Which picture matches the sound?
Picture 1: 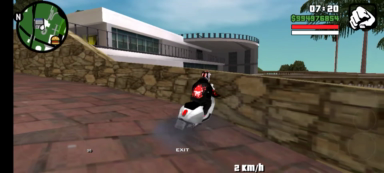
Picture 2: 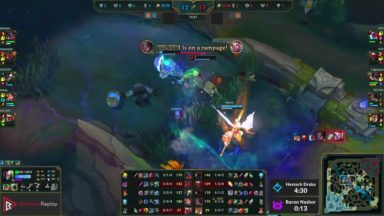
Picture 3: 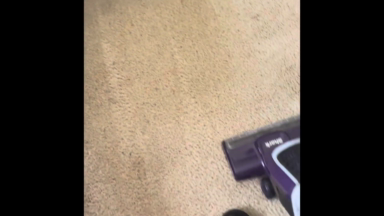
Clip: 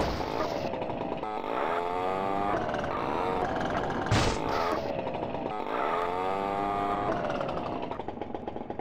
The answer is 1